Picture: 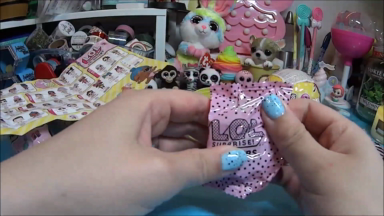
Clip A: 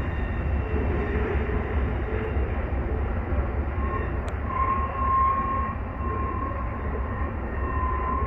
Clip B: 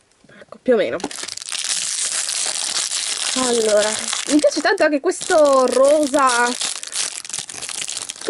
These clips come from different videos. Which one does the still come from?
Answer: B